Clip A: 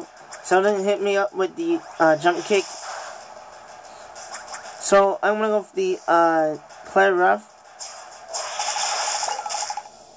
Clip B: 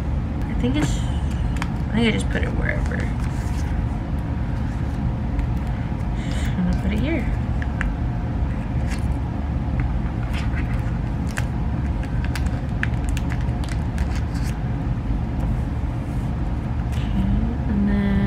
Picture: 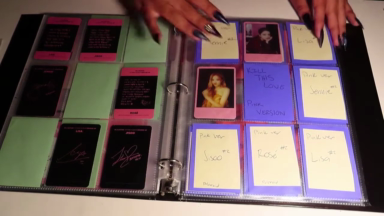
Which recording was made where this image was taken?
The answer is B